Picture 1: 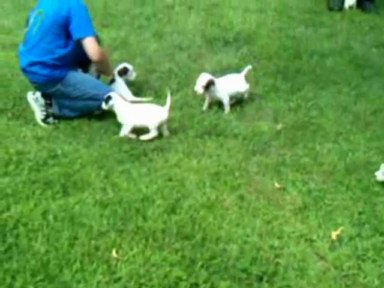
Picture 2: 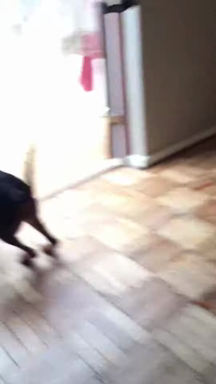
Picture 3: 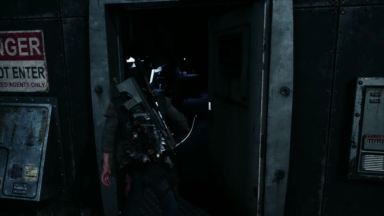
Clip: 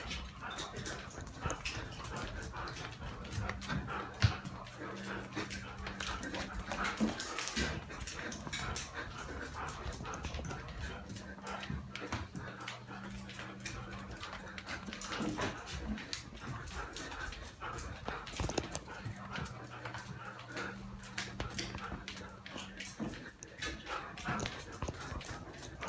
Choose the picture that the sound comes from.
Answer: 2